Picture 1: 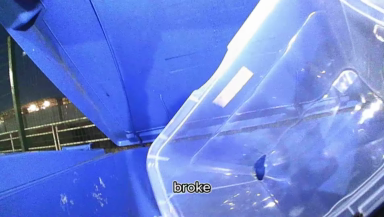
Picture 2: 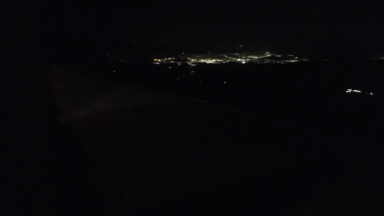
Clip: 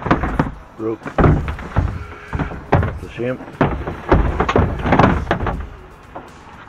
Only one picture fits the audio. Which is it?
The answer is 1